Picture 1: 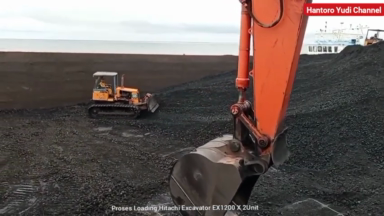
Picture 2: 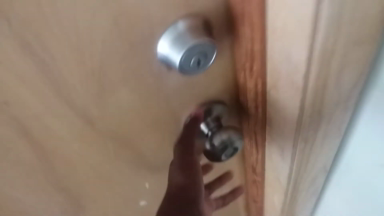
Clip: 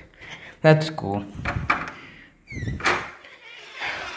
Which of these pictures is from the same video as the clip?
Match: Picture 2